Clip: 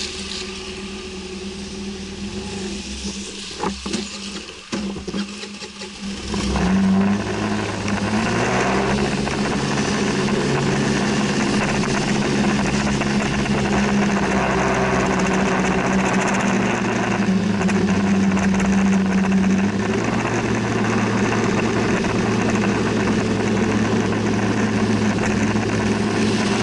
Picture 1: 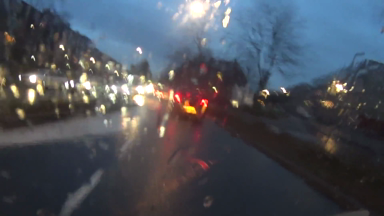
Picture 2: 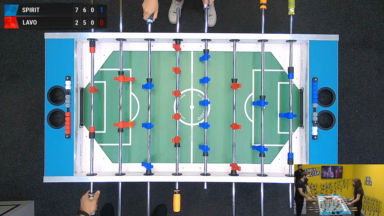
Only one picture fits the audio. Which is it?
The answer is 1